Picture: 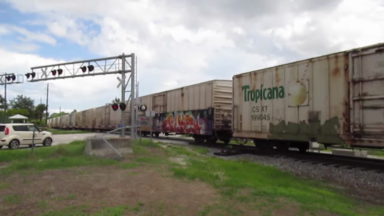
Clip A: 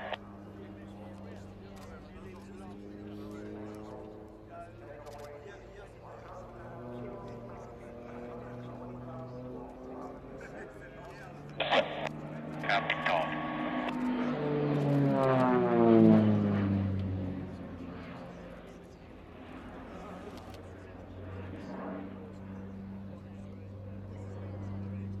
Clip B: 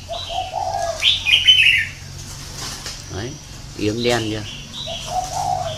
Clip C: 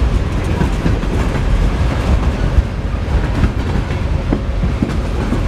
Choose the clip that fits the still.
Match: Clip C